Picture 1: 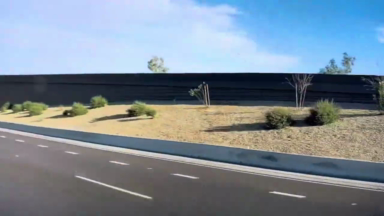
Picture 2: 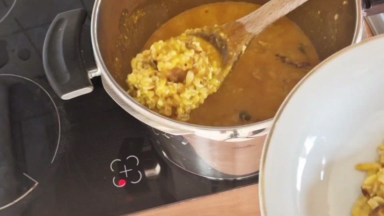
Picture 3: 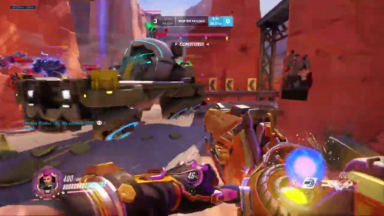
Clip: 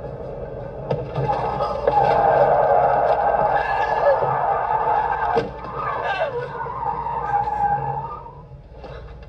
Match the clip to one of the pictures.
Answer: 1